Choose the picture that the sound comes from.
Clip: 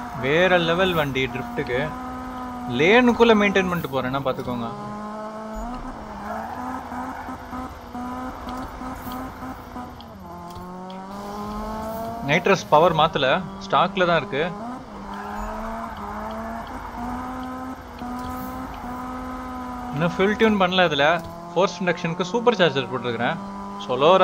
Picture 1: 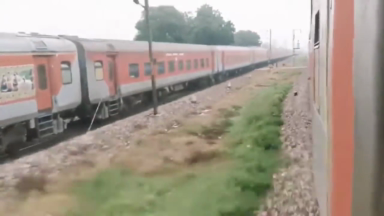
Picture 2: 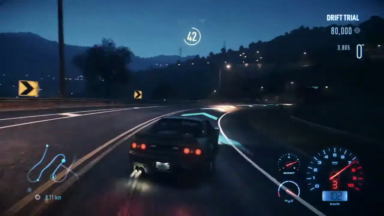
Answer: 2